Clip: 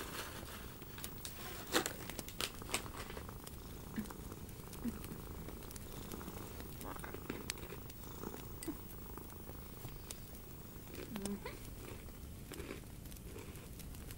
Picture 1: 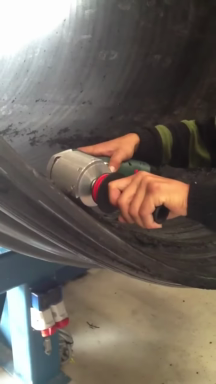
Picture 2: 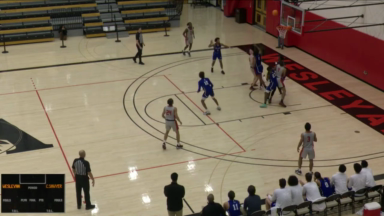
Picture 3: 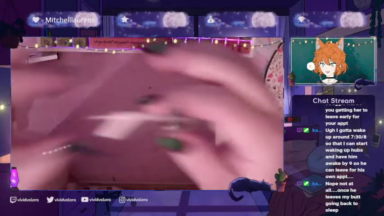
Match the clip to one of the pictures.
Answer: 3